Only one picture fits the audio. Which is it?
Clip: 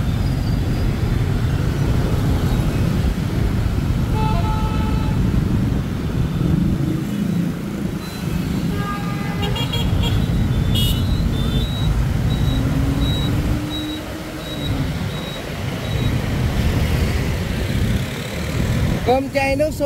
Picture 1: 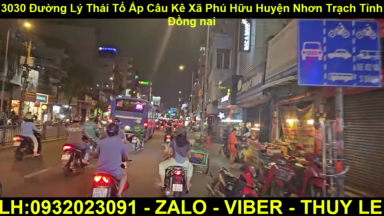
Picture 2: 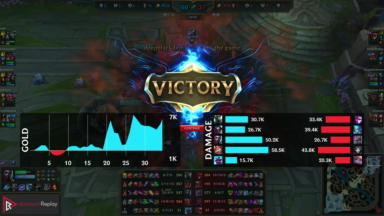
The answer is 1